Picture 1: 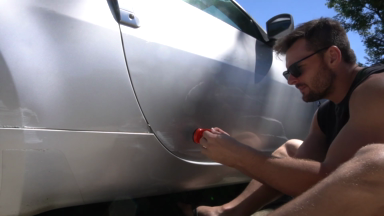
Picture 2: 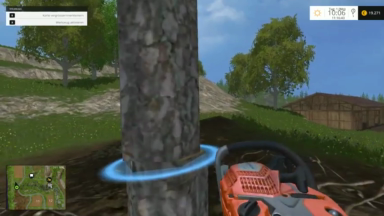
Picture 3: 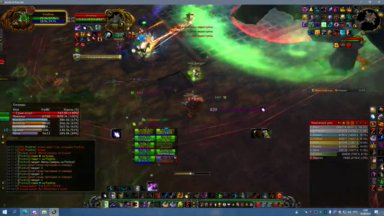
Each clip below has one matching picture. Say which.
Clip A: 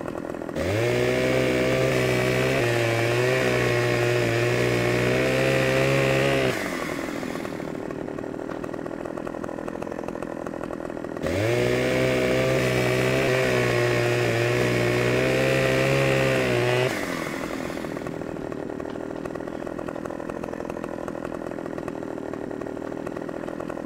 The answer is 2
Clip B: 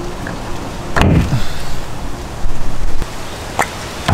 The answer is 1